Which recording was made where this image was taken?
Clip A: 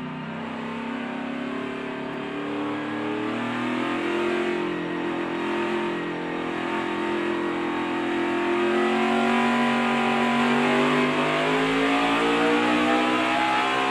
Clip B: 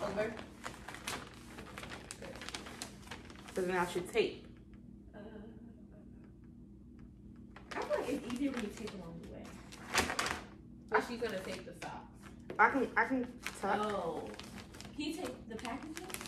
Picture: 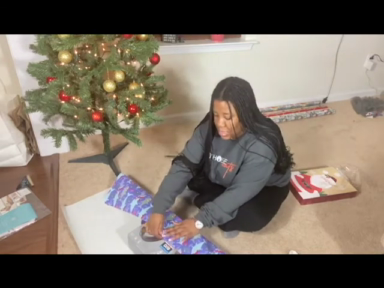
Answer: B